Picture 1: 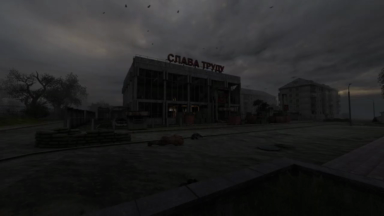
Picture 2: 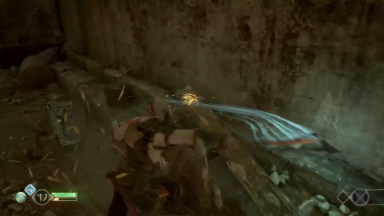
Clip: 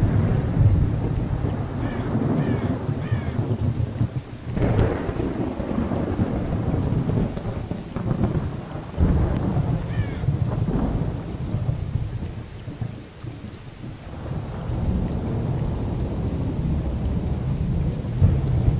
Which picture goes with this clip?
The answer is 1